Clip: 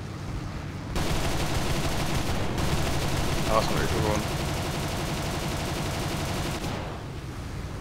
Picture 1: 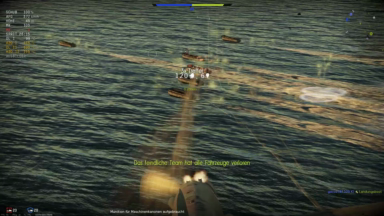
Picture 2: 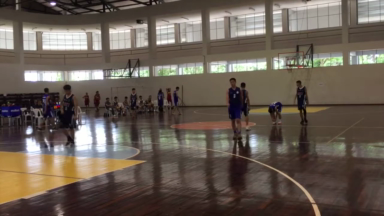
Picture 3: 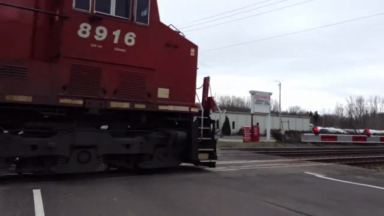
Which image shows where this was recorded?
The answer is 1